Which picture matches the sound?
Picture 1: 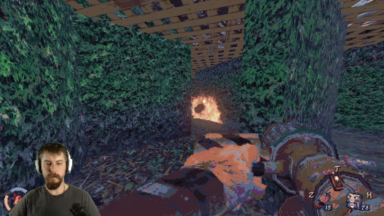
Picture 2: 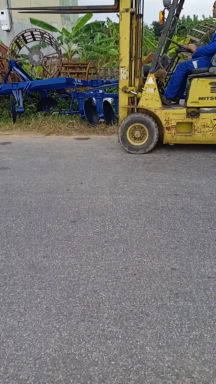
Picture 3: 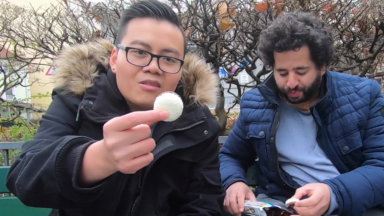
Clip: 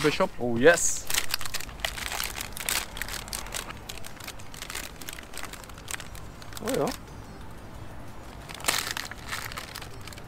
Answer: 3